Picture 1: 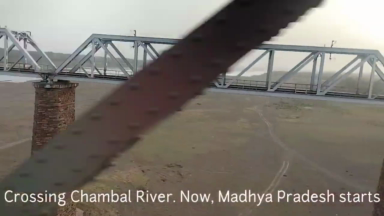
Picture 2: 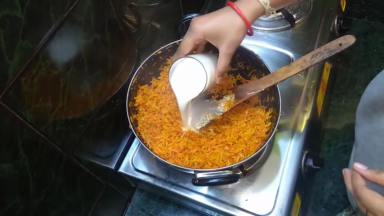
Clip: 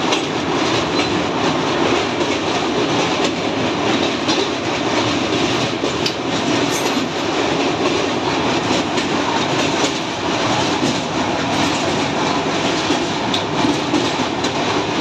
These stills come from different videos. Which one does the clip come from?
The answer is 1